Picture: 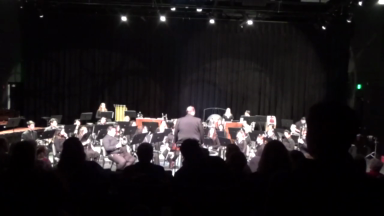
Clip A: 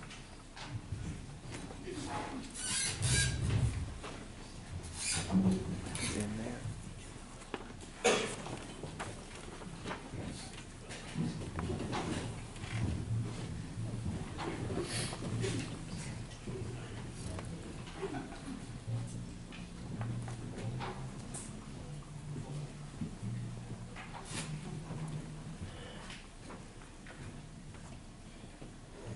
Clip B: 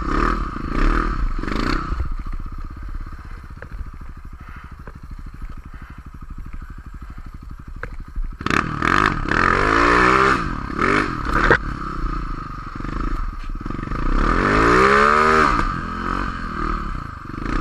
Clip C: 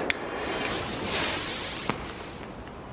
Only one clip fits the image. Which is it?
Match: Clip A